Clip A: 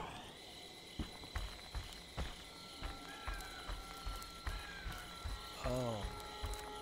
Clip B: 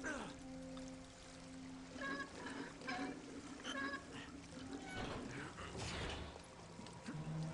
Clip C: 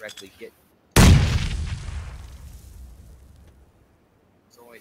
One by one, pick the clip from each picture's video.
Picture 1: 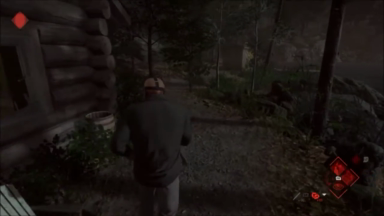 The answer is A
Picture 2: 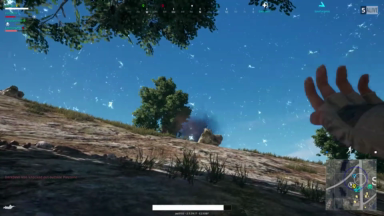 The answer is C